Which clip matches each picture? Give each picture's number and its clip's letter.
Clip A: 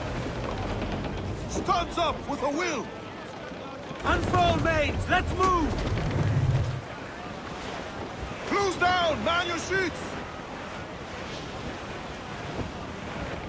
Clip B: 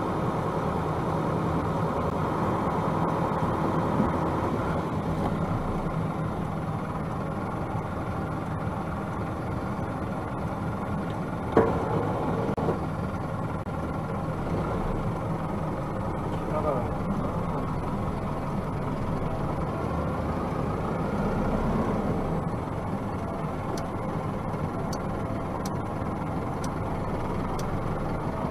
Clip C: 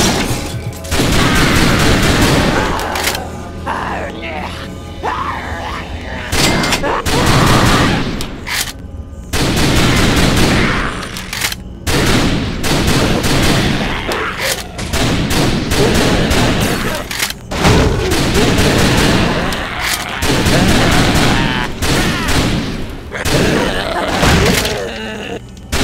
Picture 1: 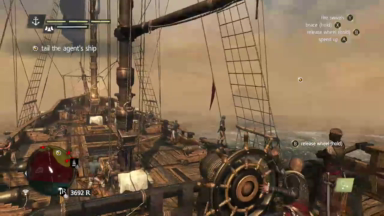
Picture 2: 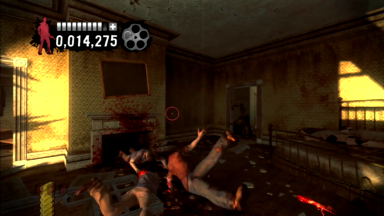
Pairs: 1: A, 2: C